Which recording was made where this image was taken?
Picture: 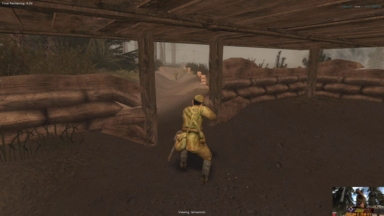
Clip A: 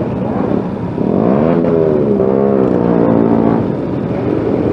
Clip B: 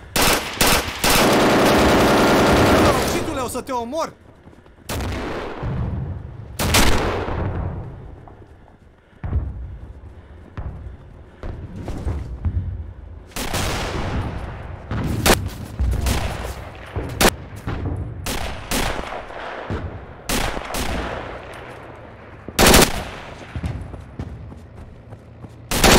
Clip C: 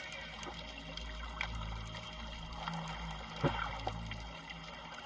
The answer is B